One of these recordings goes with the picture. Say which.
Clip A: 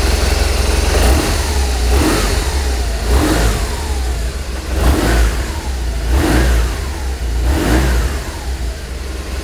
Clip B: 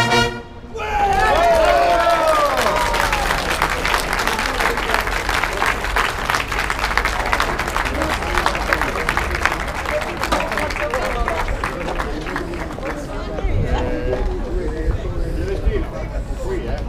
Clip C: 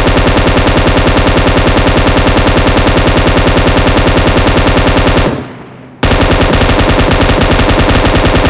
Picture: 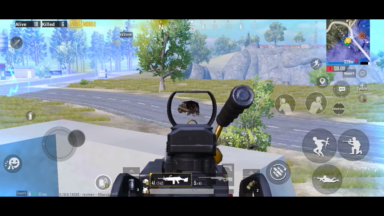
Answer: C